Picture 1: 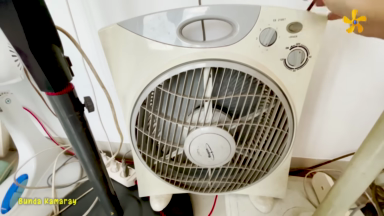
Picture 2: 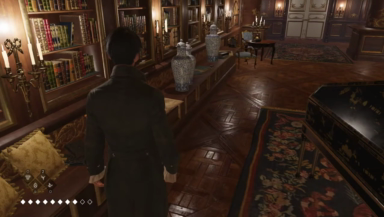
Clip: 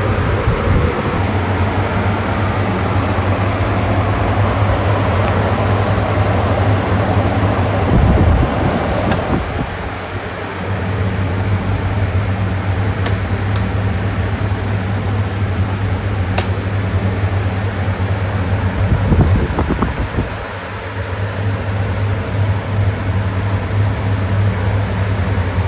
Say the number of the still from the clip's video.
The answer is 1